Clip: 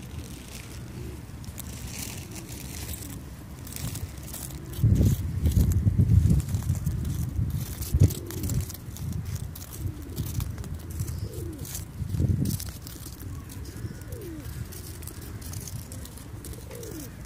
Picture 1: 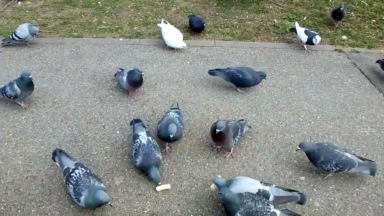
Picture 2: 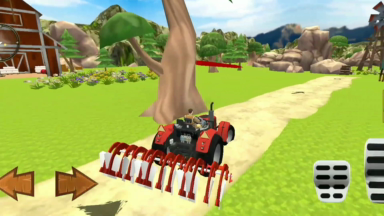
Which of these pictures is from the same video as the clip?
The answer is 1